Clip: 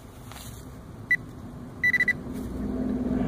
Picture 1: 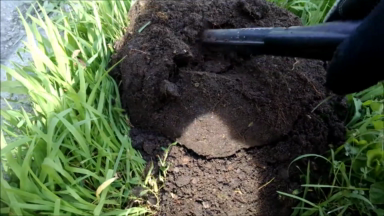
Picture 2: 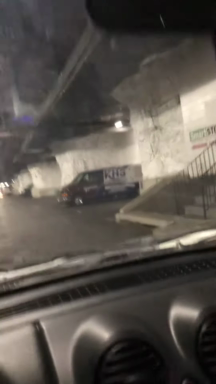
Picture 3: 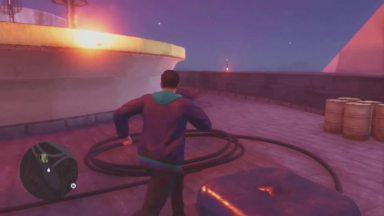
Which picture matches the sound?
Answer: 1